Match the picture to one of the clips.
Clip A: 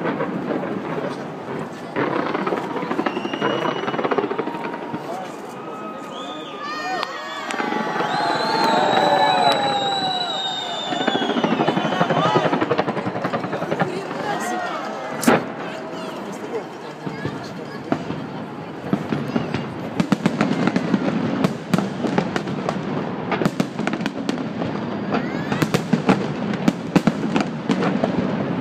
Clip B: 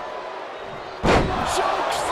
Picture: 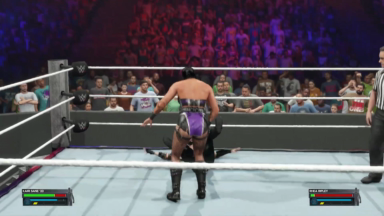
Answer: B